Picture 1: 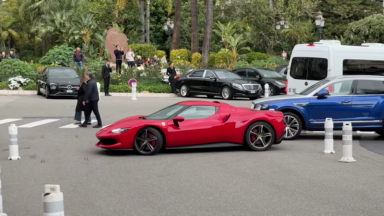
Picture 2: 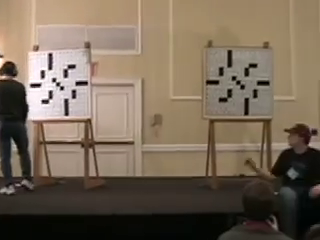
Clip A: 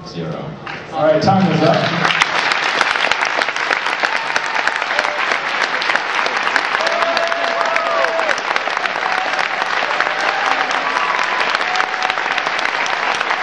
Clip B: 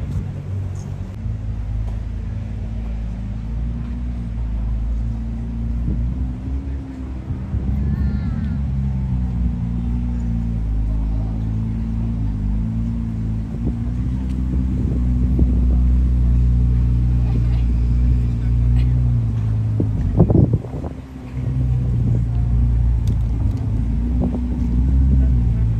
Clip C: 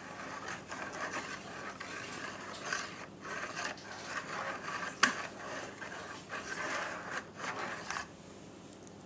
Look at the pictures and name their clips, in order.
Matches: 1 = B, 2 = A